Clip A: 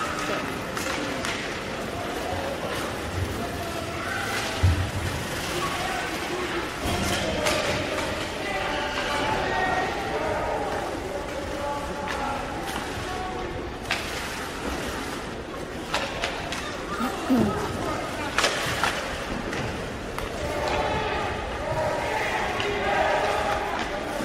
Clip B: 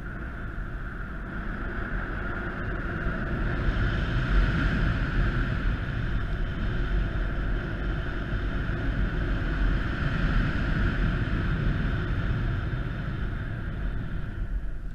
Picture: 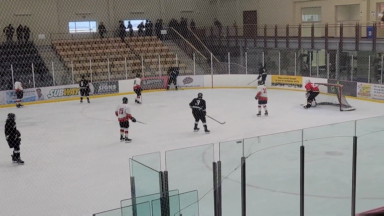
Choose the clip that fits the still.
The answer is A